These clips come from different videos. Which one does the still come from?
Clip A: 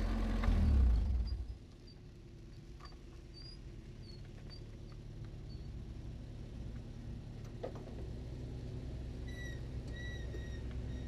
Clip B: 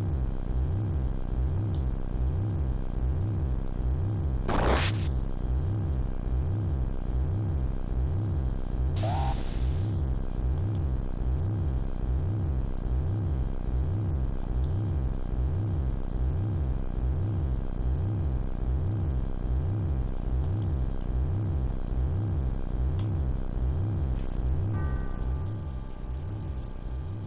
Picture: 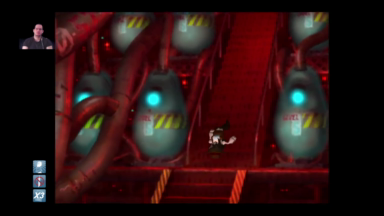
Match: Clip B